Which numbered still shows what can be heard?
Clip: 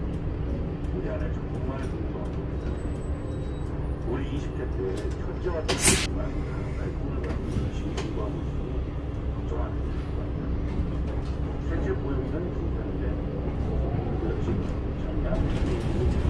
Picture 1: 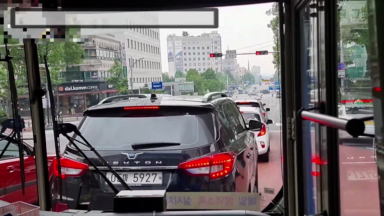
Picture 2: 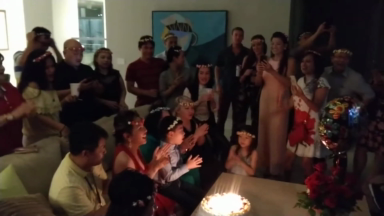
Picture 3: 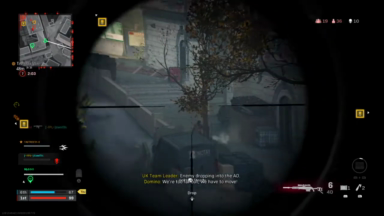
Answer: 1